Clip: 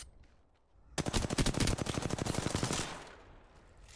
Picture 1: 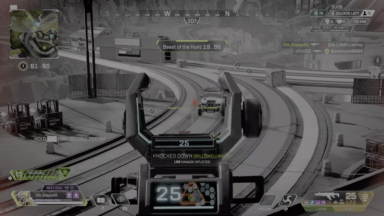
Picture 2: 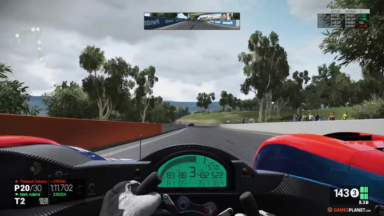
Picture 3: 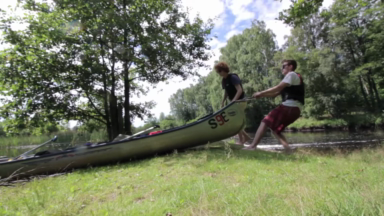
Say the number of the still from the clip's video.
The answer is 1